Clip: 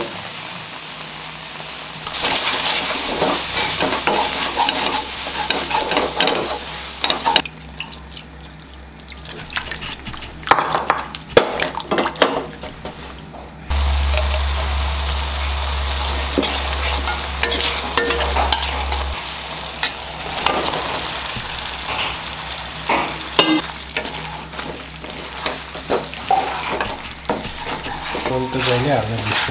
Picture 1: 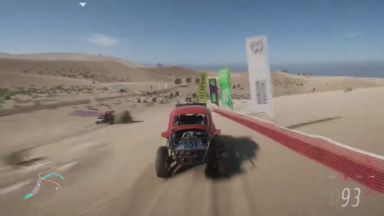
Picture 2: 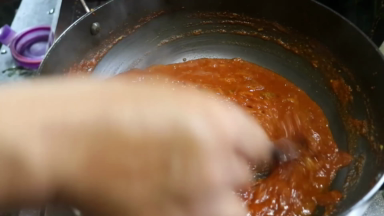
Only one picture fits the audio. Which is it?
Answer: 2